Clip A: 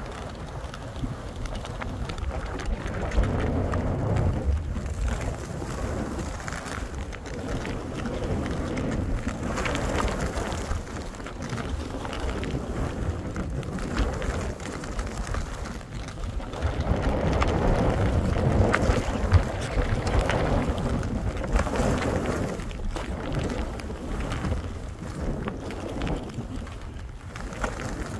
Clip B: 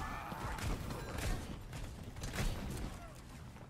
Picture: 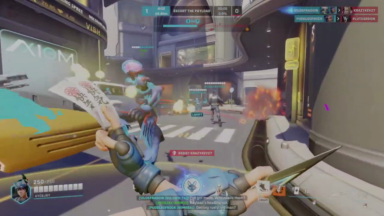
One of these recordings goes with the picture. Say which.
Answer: B